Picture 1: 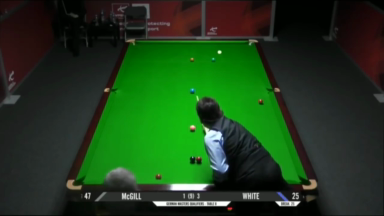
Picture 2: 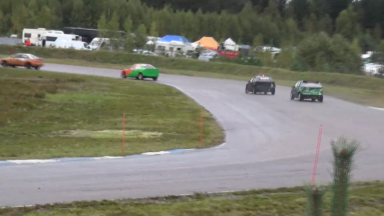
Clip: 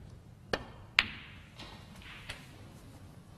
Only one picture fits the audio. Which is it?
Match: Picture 1